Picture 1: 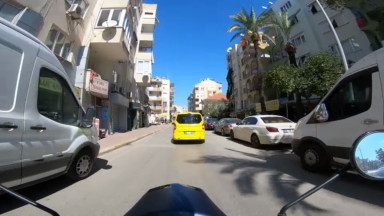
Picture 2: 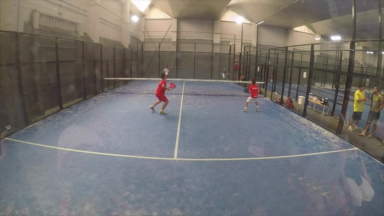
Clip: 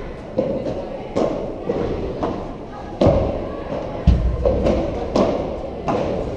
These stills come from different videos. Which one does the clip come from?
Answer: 2